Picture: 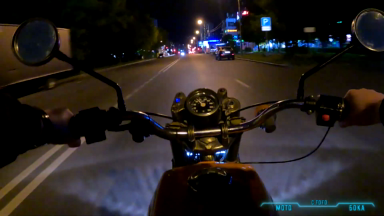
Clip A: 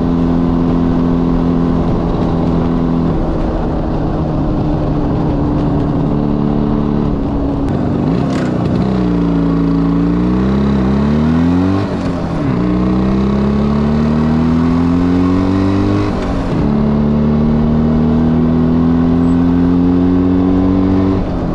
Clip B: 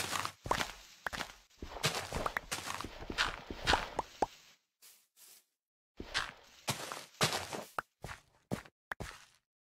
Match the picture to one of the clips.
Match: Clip A